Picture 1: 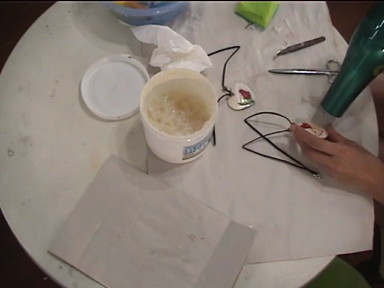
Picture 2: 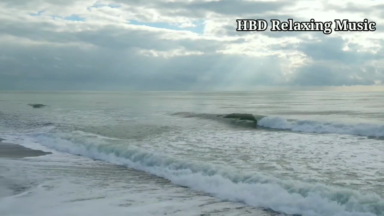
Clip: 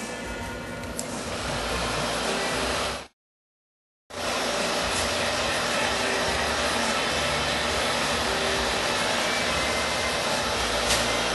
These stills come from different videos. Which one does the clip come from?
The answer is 1